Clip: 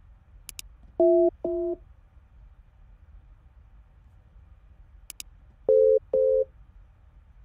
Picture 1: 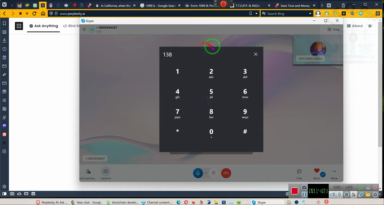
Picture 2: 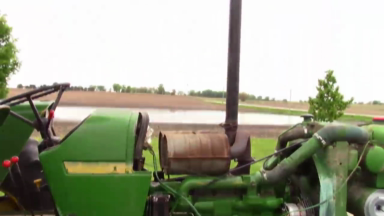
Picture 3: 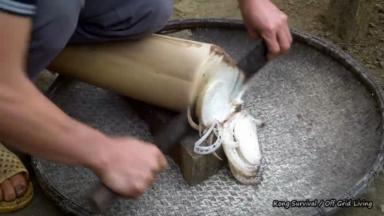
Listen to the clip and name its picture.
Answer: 1